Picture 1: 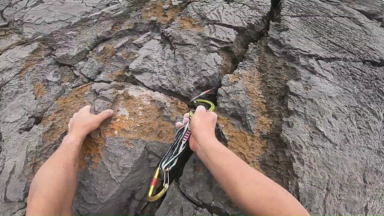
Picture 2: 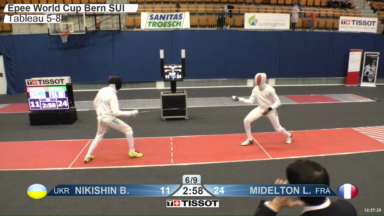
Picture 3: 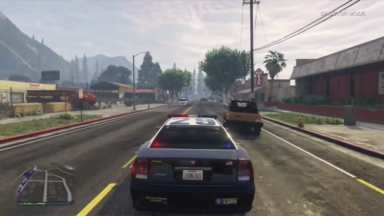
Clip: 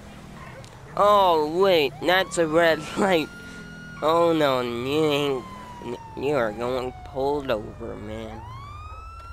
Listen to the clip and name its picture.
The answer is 3